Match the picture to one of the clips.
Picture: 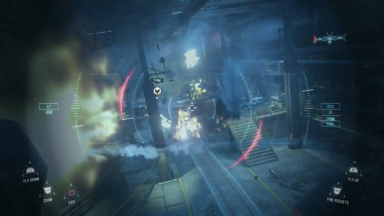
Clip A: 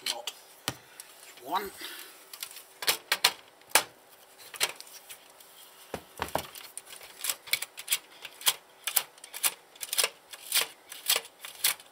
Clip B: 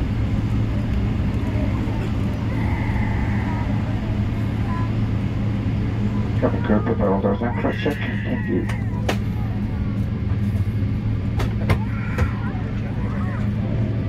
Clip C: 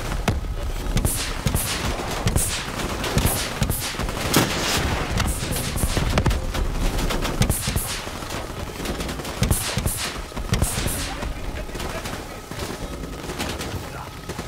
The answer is C